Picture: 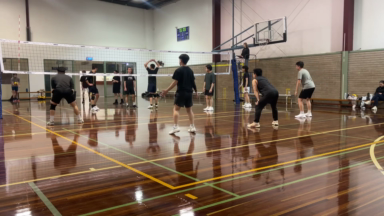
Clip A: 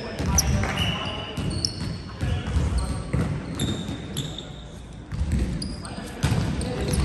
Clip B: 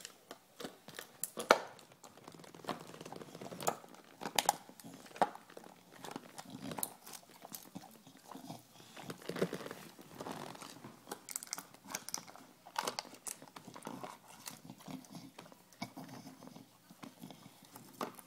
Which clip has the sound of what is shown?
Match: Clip A